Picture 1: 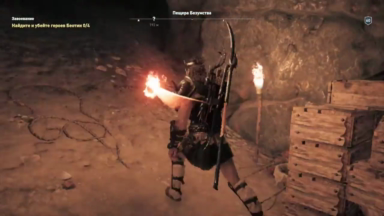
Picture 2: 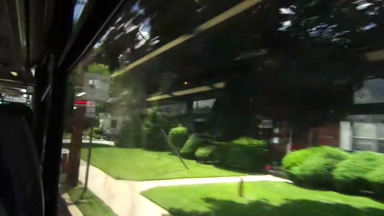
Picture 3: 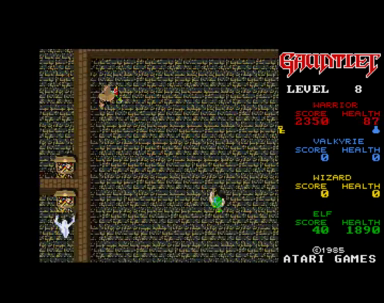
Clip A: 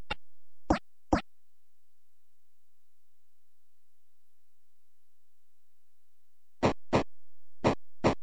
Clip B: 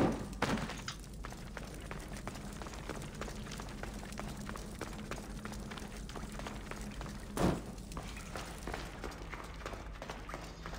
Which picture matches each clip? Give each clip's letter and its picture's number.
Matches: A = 3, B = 1